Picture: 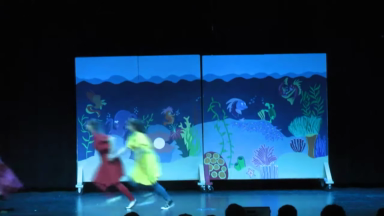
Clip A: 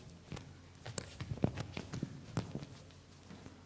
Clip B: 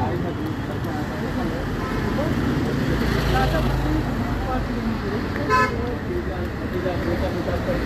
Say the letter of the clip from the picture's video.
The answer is A